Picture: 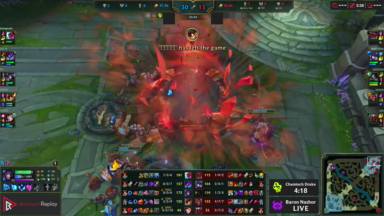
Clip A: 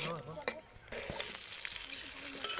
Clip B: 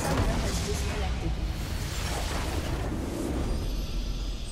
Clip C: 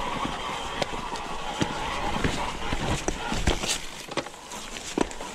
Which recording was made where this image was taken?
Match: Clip B